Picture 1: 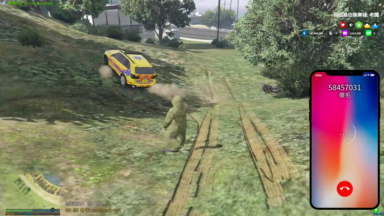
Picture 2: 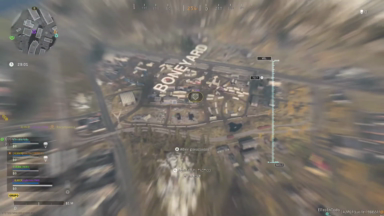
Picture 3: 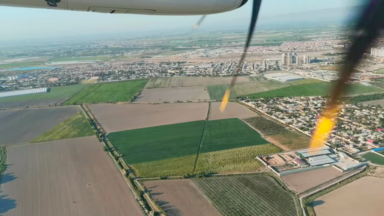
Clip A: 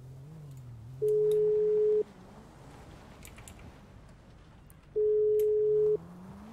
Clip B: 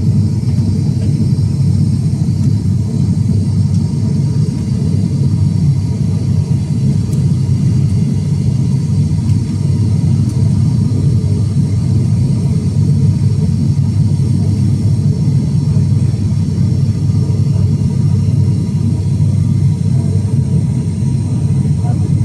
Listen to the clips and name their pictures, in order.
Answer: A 1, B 3